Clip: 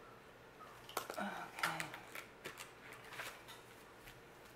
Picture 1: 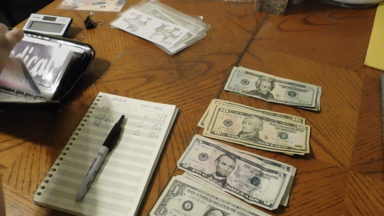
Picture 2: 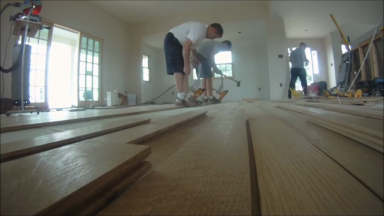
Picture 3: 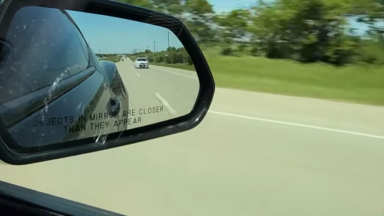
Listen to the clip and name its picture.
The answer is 1